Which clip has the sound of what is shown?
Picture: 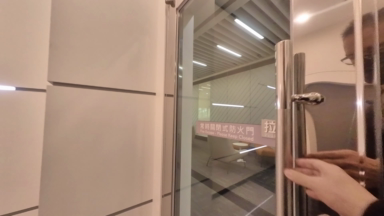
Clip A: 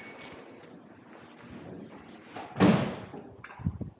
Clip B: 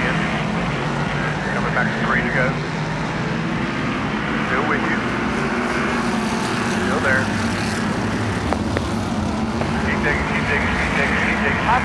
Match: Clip A